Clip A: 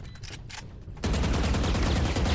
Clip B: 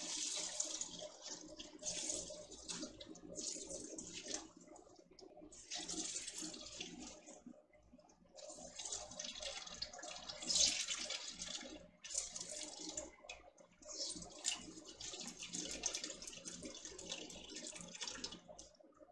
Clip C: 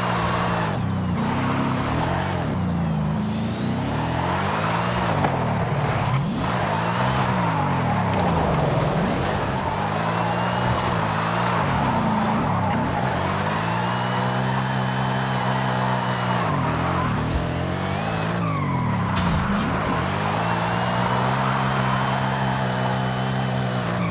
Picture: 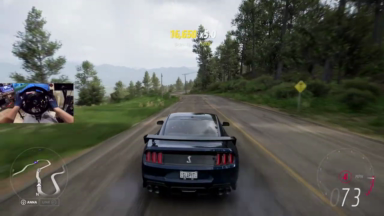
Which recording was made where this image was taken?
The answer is C